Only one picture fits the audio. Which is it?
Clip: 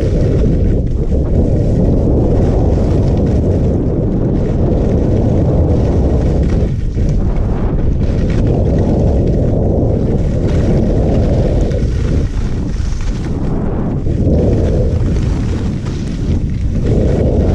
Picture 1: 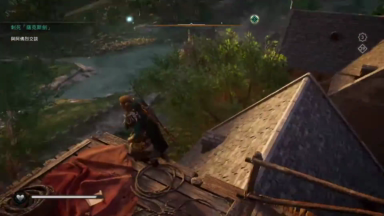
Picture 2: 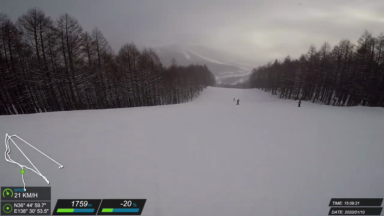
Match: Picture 2